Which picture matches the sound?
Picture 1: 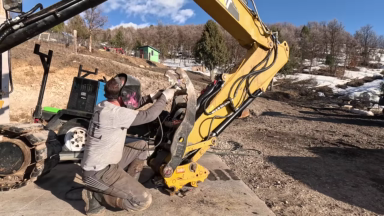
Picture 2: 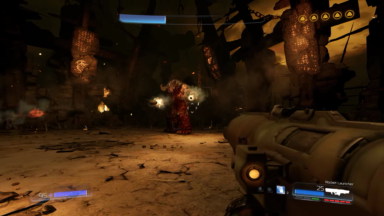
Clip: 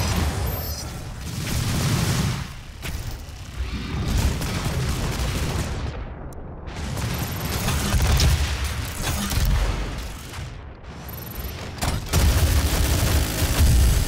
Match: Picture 2